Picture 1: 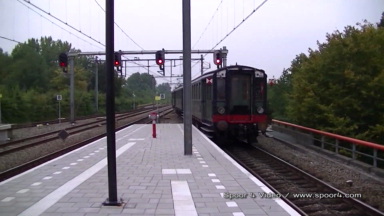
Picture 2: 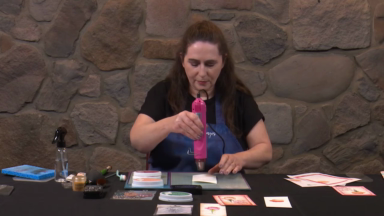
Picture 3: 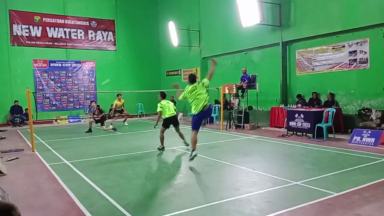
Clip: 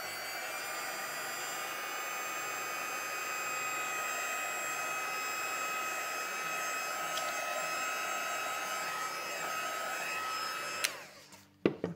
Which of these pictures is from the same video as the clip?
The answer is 2